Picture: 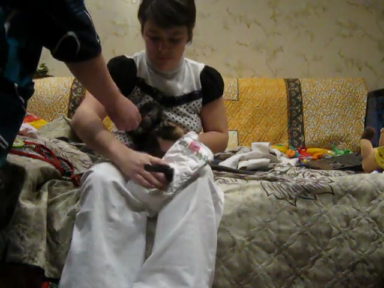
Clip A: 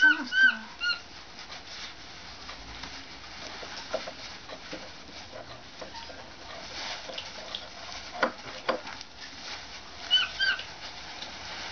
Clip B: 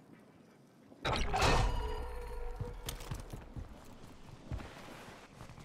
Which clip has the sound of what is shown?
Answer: A